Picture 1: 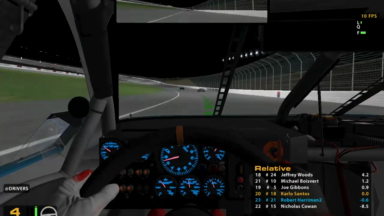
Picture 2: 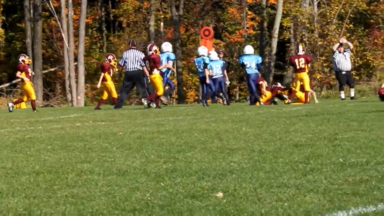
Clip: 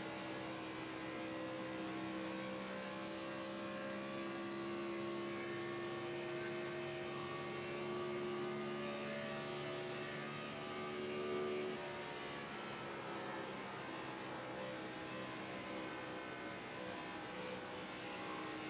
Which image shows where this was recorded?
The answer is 1